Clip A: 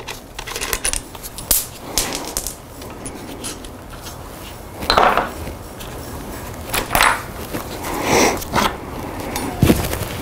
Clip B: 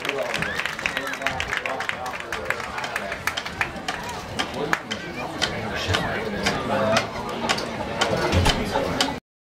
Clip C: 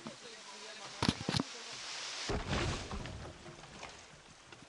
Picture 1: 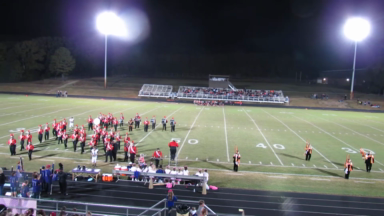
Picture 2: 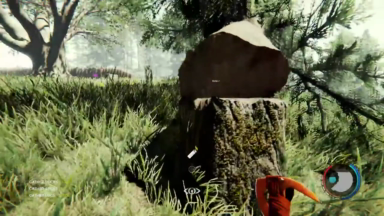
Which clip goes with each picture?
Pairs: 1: B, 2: C